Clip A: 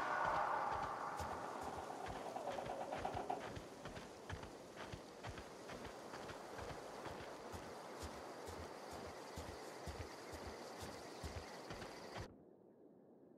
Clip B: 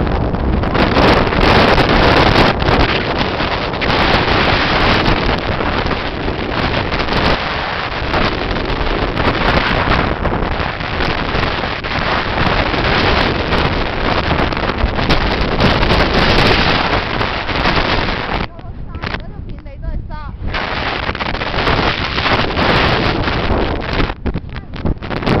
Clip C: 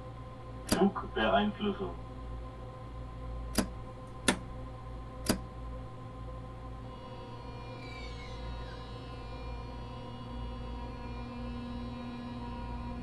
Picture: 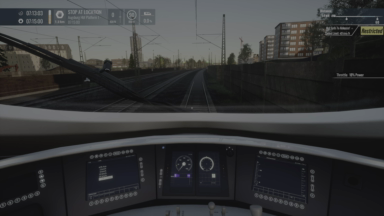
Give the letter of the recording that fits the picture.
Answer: C